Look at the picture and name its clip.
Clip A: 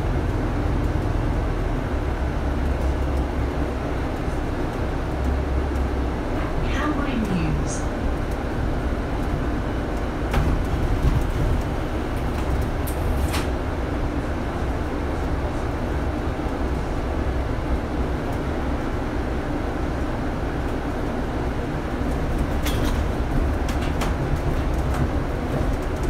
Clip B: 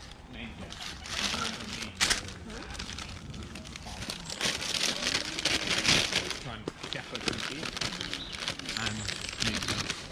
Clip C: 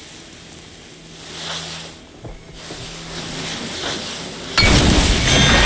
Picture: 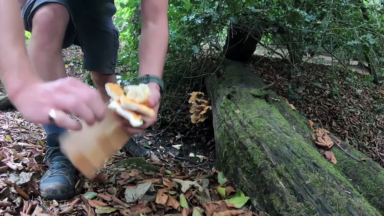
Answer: B